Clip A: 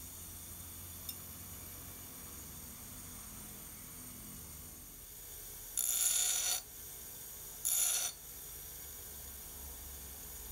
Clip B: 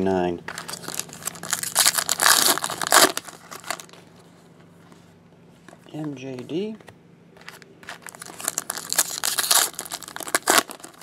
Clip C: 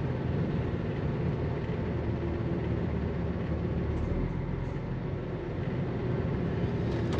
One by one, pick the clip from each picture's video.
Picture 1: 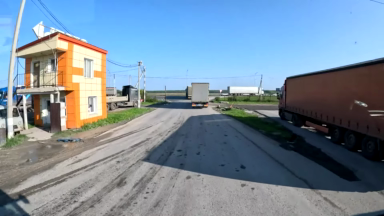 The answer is C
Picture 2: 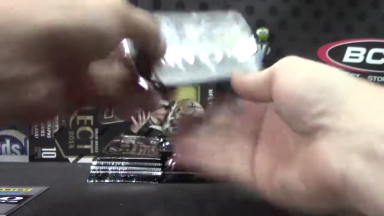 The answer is B